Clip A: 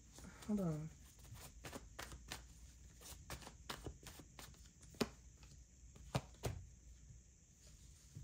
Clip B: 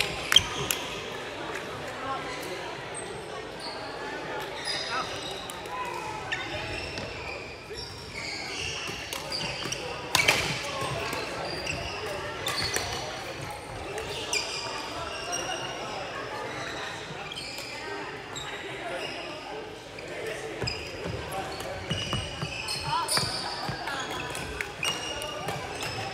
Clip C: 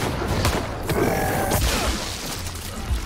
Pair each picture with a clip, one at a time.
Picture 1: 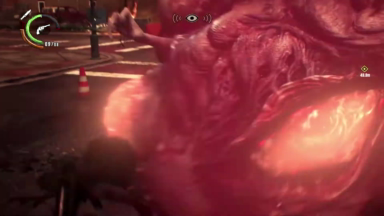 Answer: C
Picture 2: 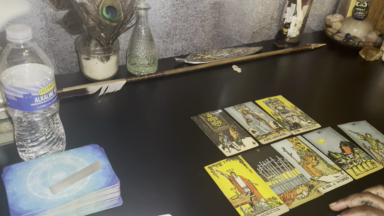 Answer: A